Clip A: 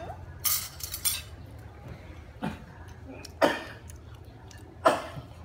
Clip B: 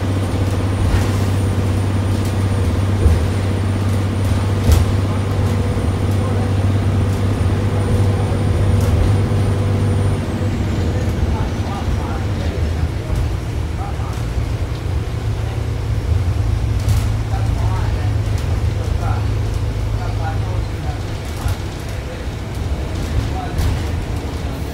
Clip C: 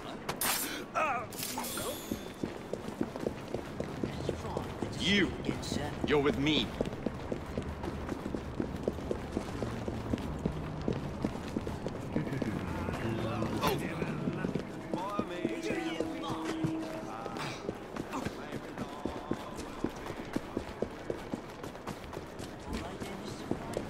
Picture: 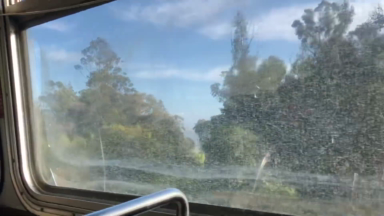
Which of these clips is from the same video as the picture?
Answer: B